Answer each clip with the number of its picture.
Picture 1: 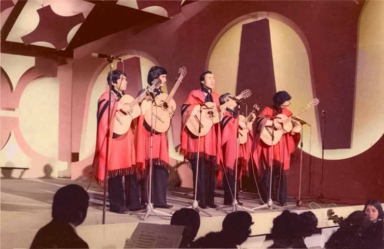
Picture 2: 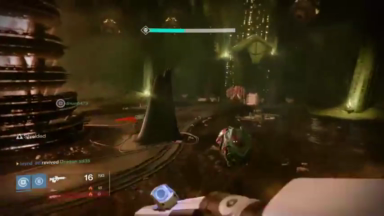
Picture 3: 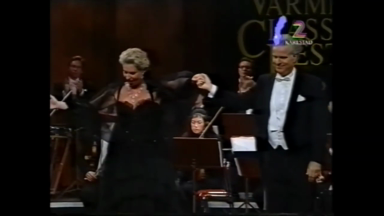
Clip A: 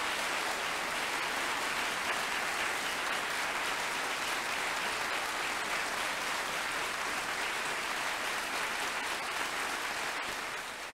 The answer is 3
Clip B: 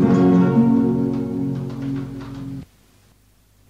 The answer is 1